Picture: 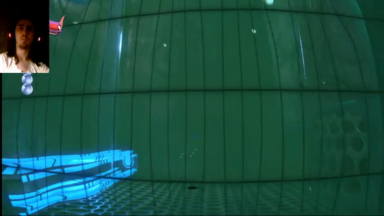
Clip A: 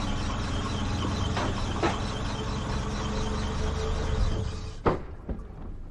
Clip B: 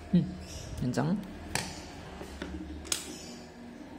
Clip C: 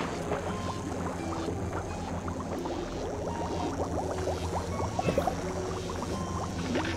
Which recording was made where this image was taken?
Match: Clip C